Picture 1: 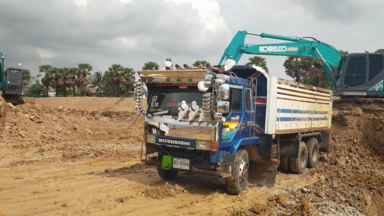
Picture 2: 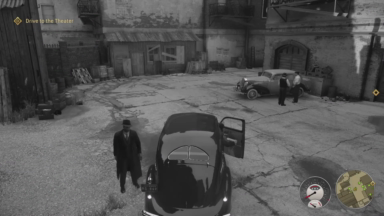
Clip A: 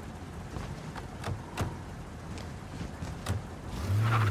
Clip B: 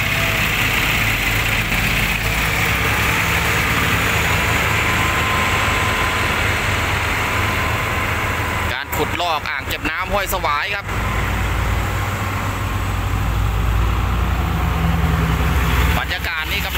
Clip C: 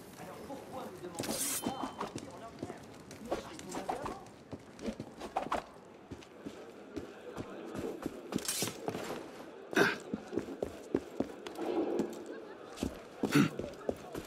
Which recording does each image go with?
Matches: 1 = B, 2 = A